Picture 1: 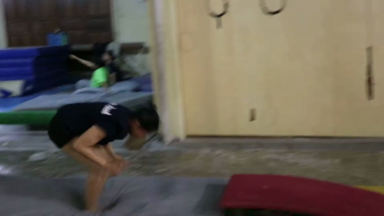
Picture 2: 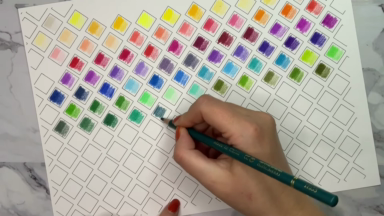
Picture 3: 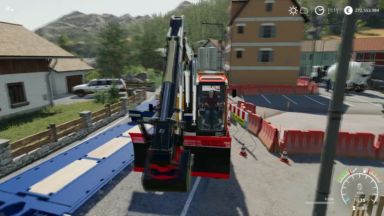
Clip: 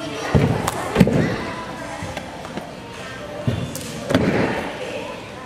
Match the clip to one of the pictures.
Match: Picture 1